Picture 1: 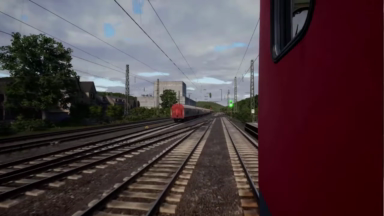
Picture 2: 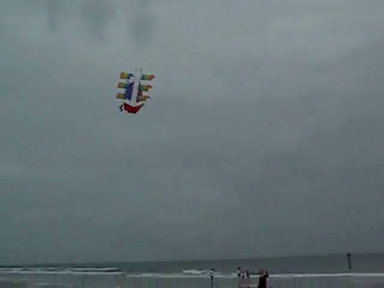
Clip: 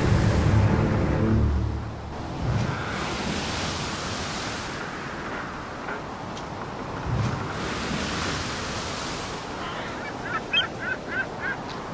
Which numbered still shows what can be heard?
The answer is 2